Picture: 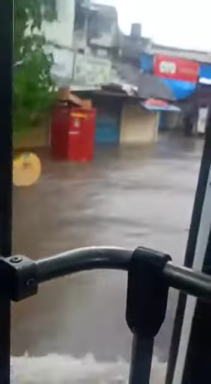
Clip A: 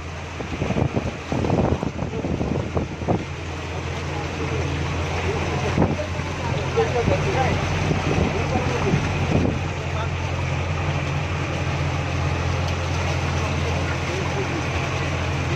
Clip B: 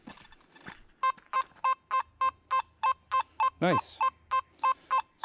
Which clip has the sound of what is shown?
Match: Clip A